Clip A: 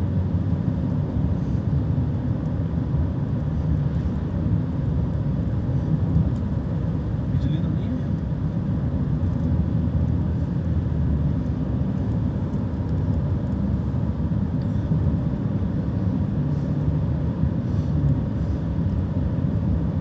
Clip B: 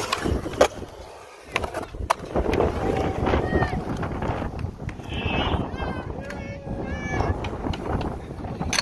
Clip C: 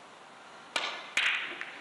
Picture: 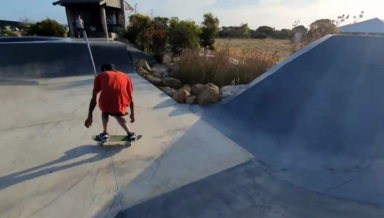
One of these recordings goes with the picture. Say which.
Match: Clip B